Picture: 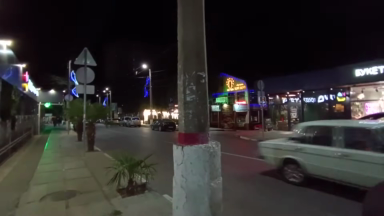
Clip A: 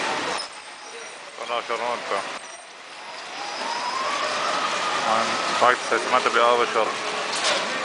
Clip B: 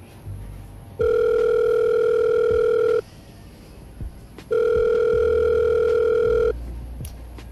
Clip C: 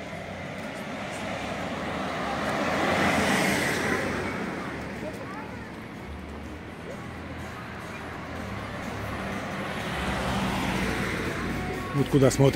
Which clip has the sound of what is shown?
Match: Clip C